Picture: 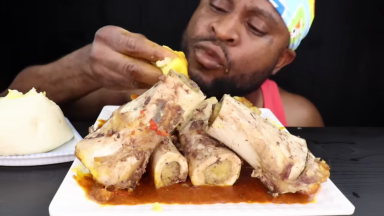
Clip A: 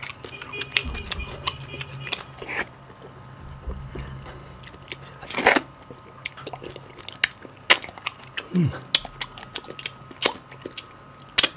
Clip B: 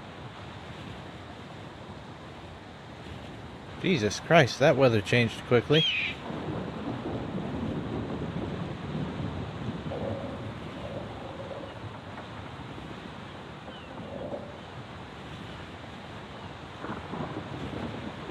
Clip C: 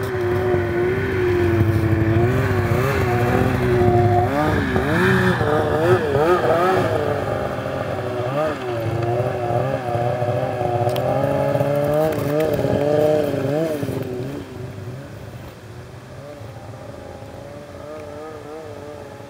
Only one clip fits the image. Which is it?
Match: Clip A